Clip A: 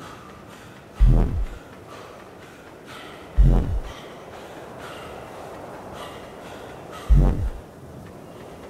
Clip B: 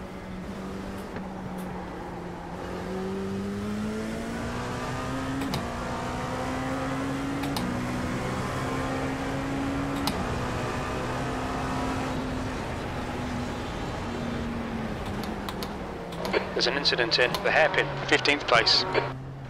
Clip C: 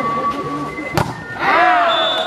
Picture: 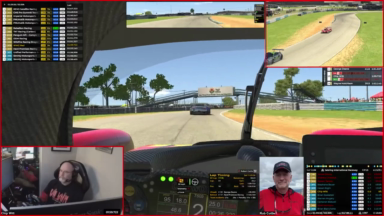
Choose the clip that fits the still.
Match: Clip B